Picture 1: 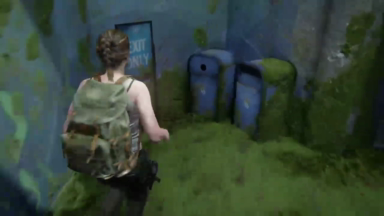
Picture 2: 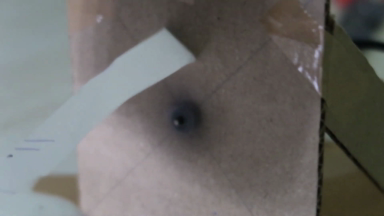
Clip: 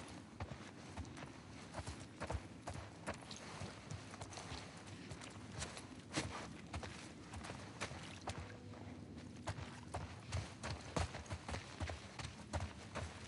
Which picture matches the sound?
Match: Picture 1